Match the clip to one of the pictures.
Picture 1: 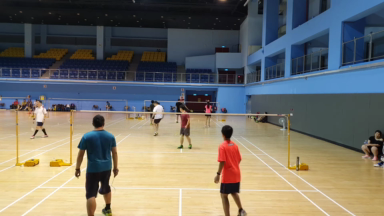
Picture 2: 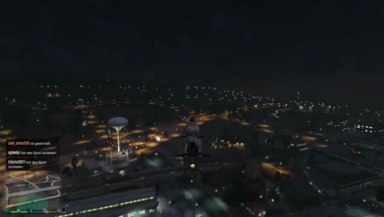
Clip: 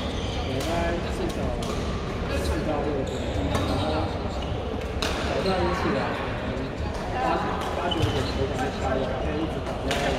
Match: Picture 1